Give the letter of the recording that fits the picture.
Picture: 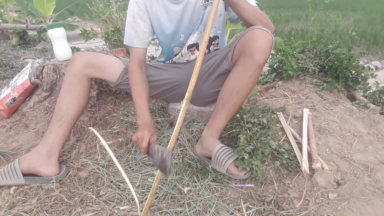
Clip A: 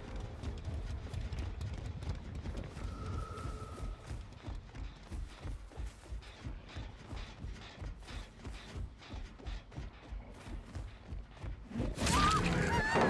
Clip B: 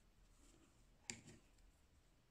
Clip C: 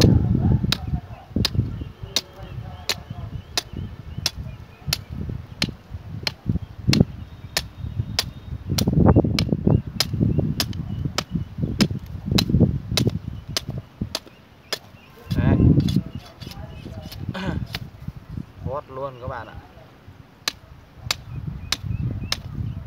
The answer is C